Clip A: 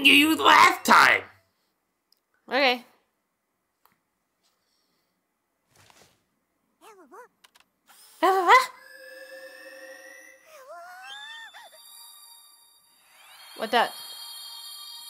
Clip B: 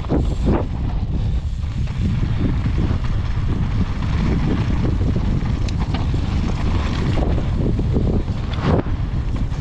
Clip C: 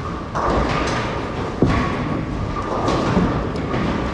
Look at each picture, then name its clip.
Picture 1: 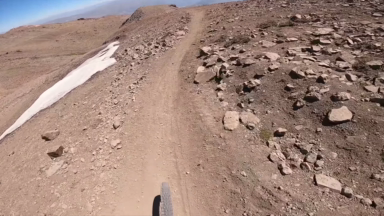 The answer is B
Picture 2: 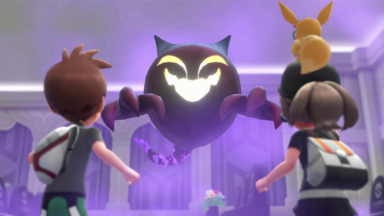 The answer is A